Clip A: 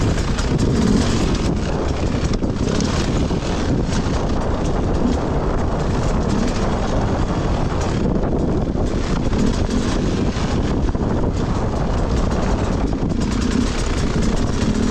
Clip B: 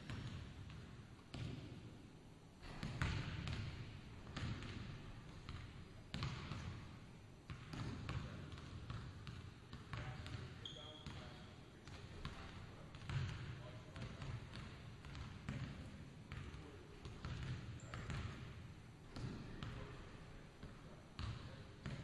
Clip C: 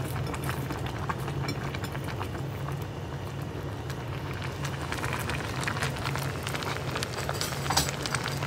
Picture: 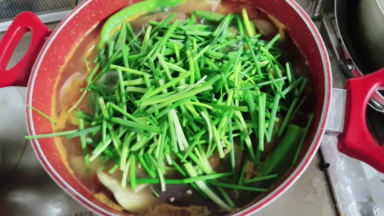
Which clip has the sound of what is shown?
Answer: C